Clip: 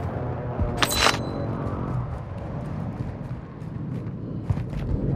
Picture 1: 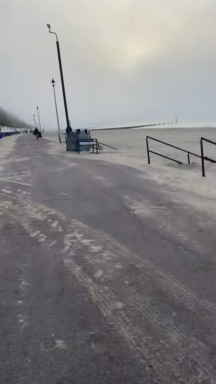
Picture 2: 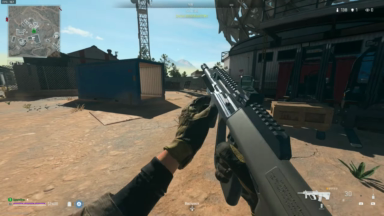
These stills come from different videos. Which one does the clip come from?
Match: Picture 2